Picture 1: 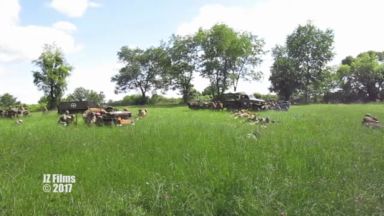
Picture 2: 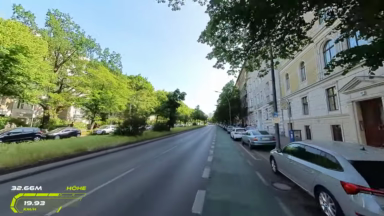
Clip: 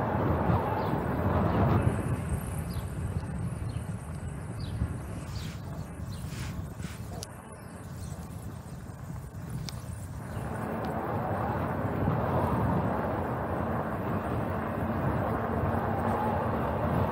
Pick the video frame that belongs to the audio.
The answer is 2